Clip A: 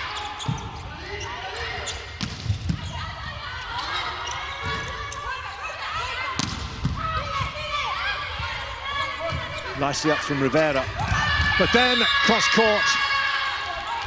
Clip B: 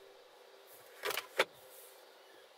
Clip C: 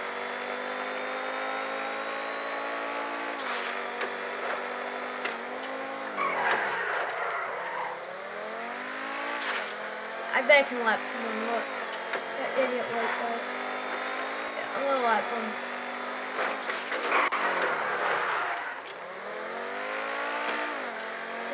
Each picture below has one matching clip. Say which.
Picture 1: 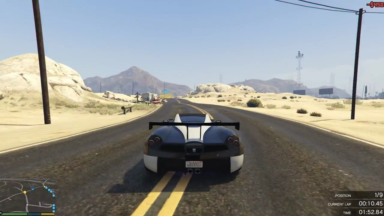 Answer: C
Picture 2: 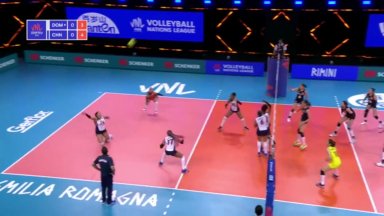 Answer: A